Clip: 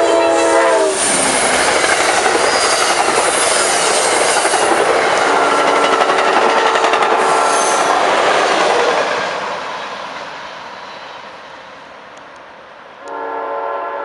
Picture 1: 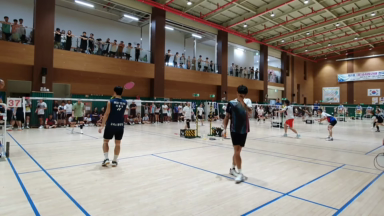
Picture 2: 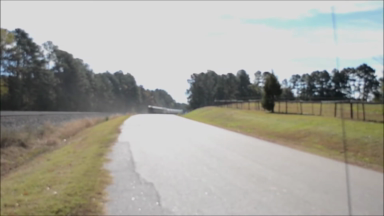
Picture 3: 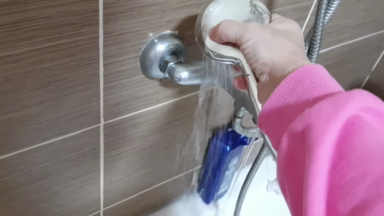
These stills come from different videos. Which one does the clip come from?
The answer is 2